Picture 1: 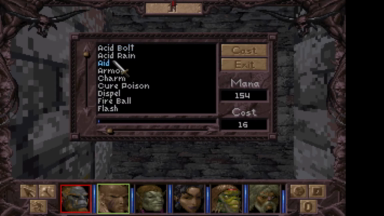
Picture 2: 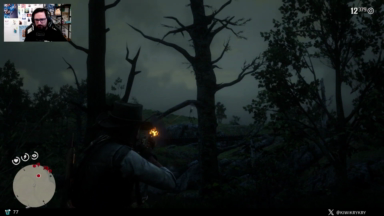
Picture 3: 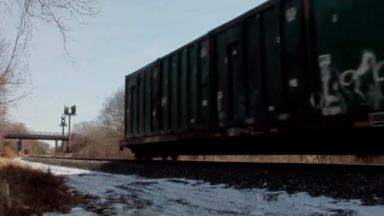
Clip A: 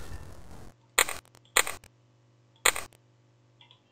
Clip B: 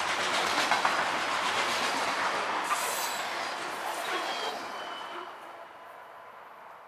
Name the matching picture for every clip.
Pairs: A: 1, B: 3